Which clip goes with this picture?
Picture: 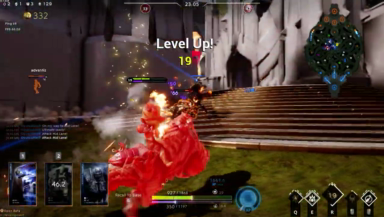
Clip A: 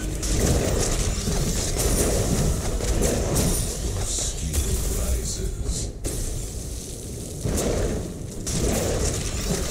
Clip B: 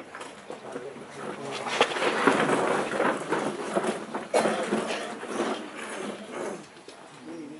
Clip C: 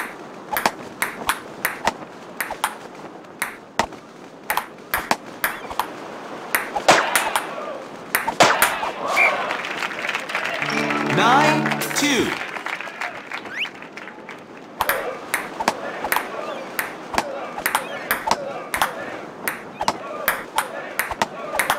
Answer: A